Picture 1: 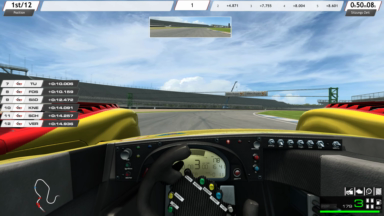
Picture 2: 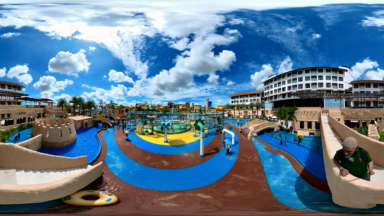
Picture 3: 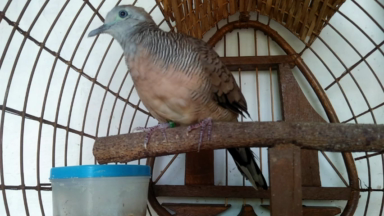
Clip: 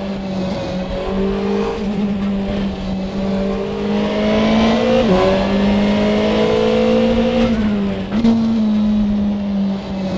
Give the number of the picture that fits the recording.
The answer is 1